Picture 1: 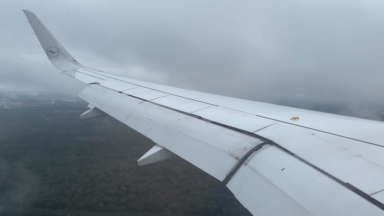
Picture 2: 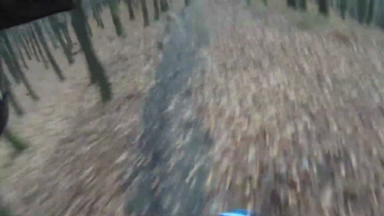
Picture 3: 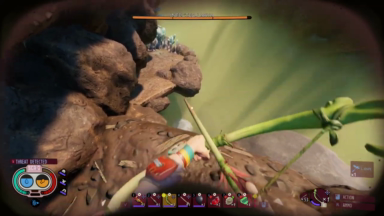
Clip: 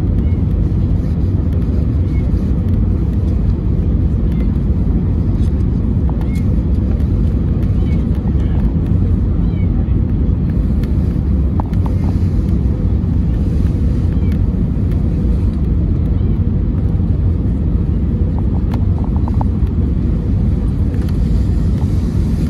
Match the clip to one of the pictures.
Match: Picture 1